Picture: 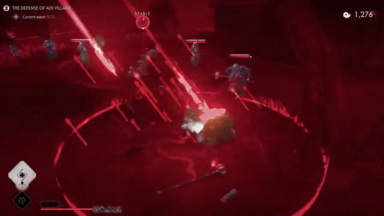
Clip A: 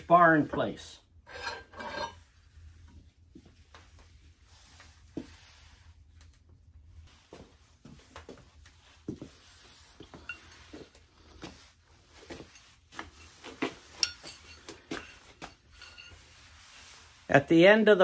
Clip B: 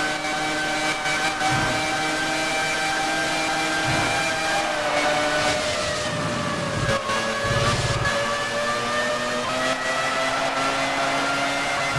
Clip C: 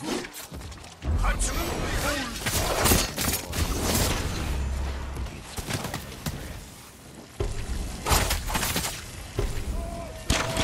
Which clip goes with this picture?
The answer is C